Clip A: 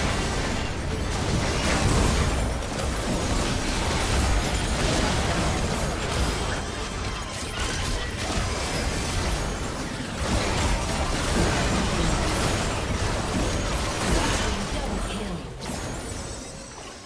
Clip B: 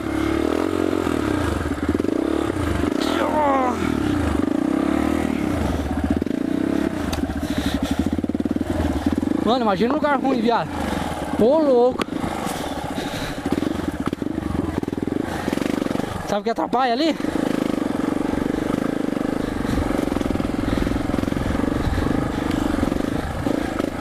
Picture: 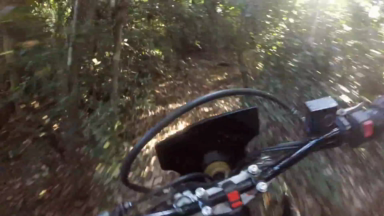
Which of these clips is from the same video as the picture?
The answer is B